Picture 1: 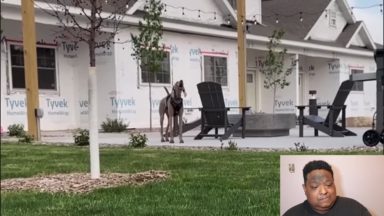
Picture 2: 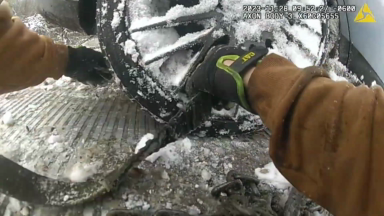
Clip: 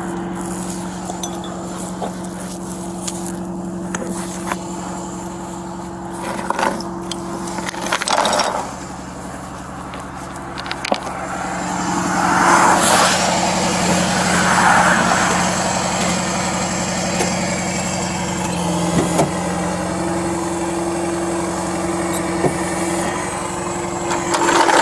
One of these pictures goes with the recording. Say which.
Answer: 2